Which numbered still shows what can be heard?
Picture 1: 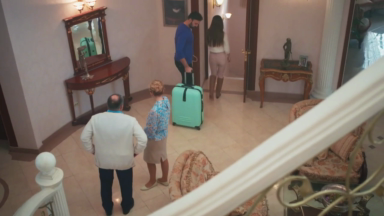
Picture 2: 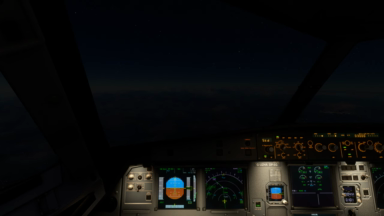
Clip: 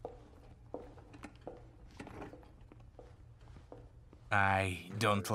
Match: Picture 1